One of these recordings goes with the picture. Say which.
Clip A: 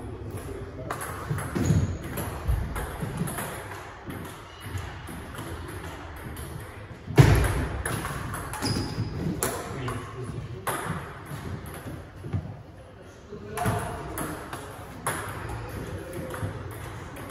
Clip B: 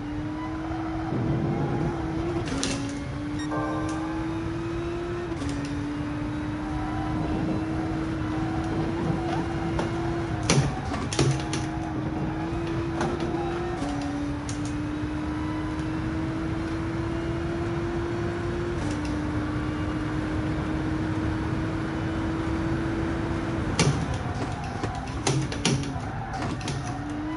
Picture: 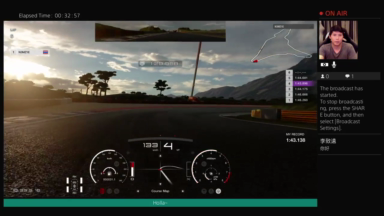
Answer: B